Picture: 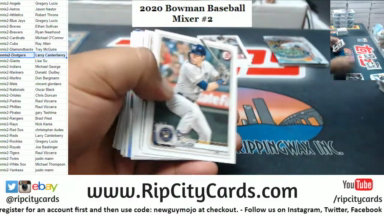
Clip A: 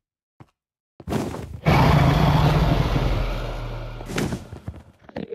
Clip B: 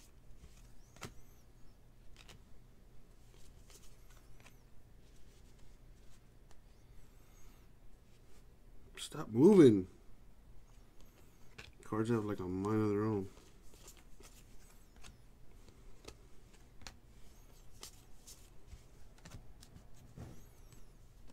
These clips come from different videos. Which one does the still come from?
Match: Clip B